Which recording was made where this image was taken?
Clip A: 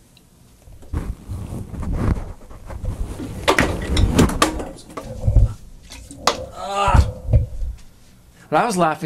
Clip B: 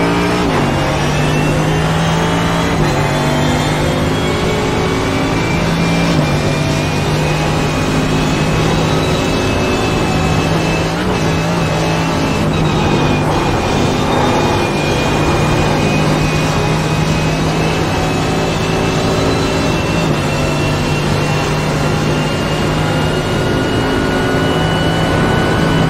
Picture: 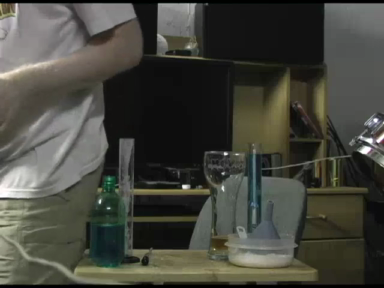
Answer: A